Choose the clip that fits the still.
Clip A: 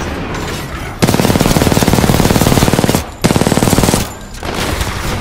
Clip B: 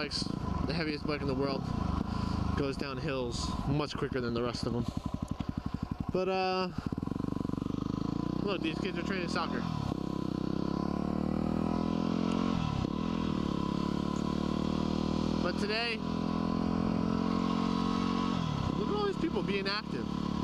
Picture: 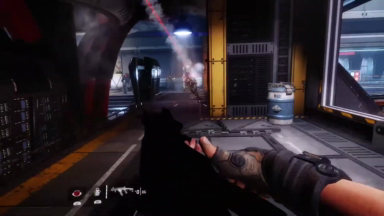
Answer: A